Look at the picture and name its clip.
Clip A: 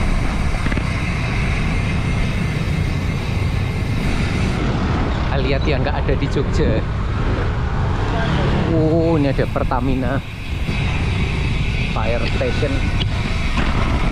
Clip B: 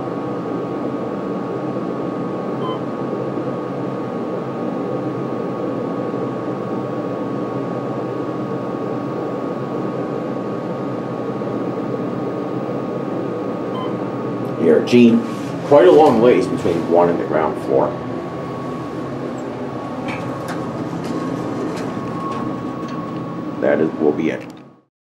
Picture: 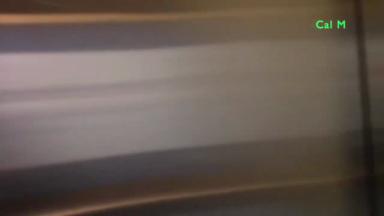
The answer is B